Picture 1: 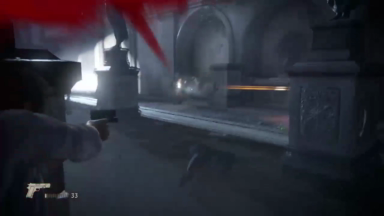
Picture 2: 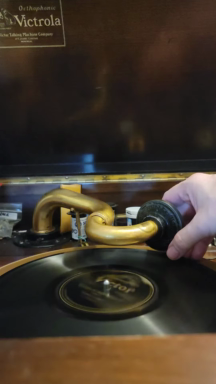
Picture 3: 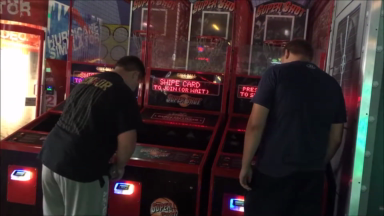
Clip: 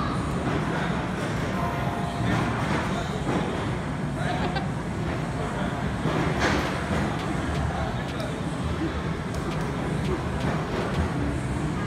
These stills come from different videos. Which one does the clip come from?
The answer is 3